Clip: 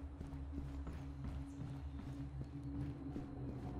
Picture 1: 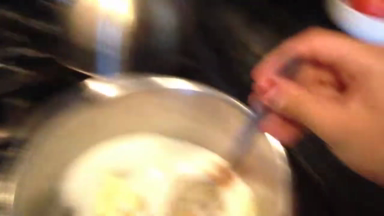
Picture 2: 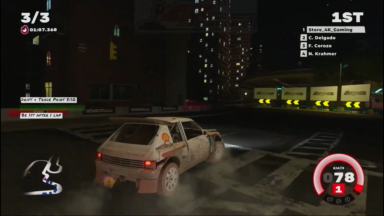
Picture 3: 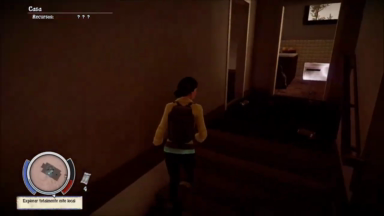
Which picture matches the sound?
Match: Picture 3